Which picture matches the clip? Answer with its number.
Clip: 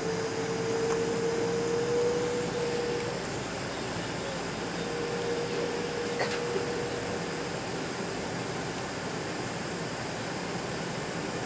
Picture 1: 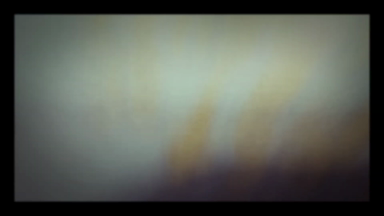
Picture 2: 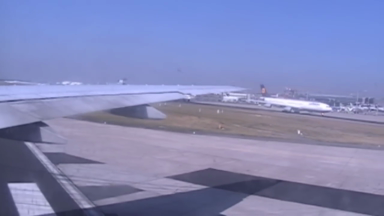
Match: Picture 2